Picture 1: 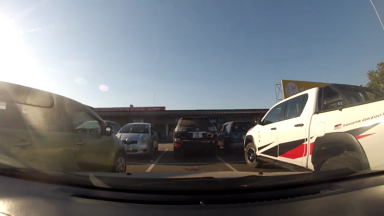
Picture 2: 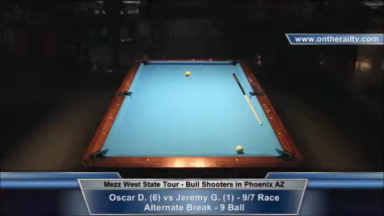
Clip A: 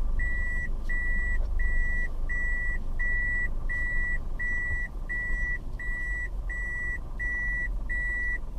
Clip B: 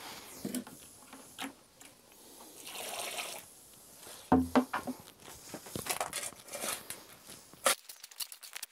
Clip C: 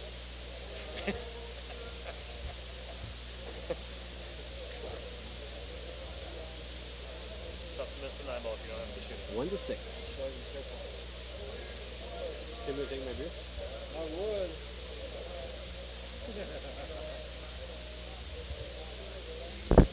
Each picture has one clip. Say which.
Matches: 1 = A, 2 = C